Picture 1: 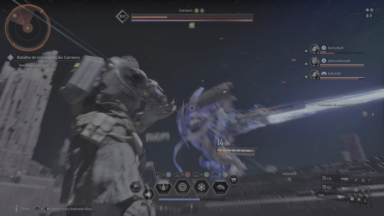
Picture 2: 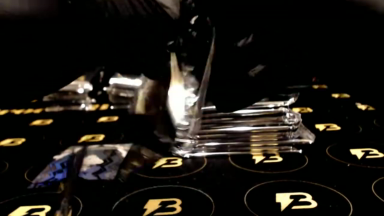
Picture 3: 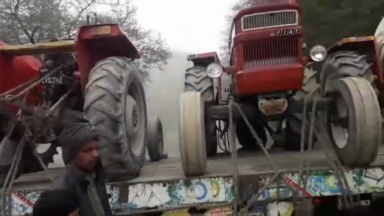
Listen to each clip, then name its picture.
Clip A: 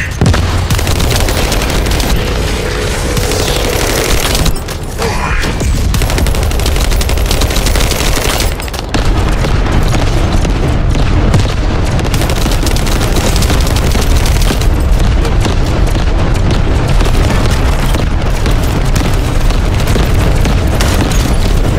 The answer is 1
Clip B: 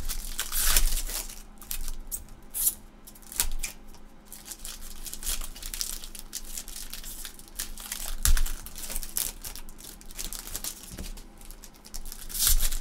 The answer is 2